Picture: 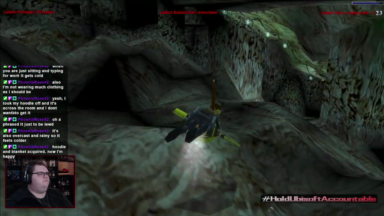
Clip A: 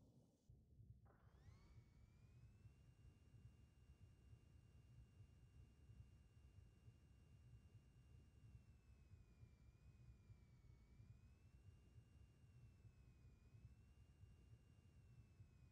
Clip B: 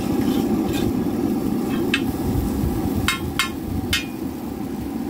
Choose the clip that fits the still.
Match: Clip A